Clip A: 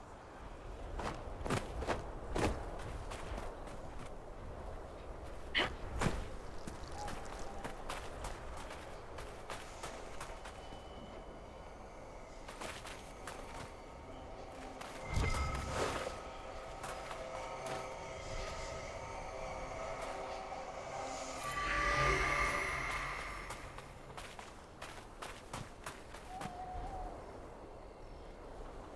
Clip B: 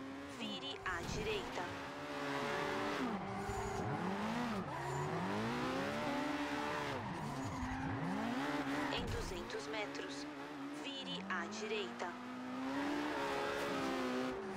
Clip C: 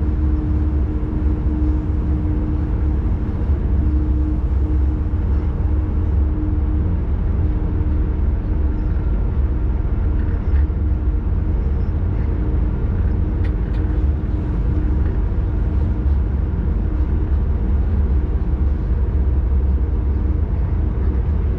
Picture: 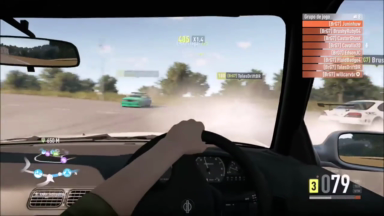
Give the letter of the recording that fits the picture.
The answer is B